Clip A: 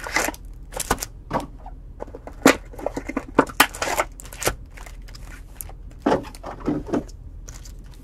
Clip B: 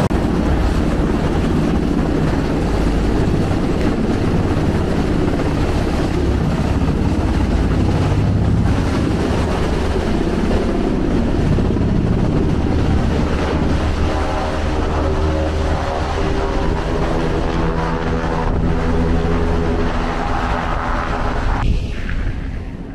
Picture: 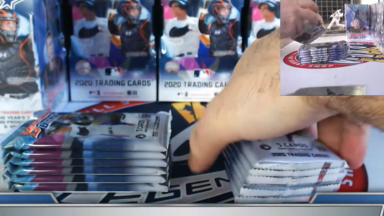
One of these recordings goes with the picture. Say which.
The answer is A